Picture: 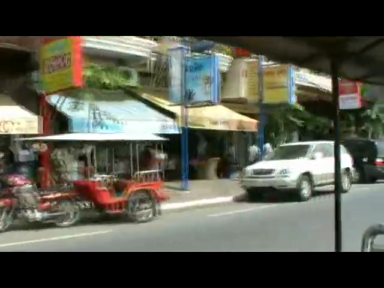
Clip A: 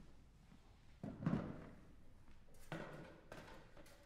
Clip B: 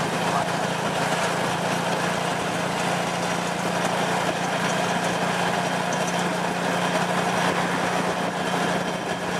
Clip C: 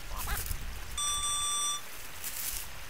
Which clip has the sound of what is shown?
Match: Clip B